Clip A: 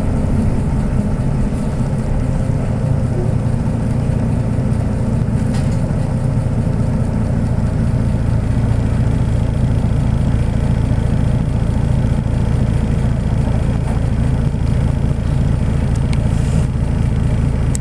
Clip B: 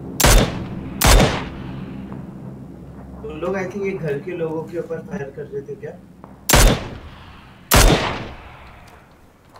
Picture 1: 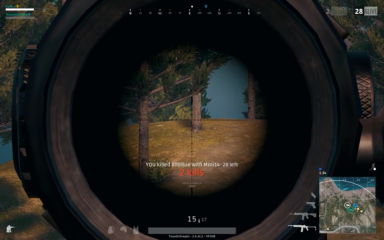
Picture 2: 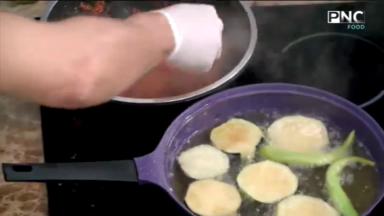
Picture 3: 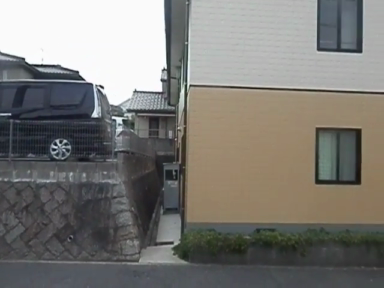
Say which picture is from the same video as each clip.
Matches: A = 3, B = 1